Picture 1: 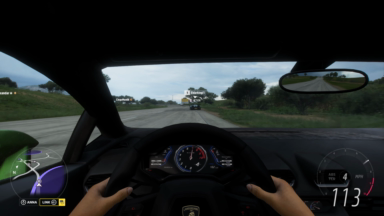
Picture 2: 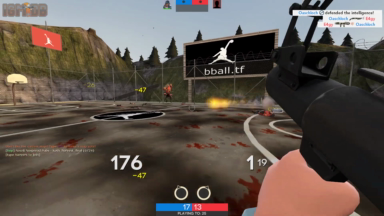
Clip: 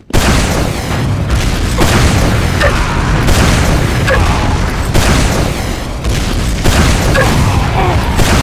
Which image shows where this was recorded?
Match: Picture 2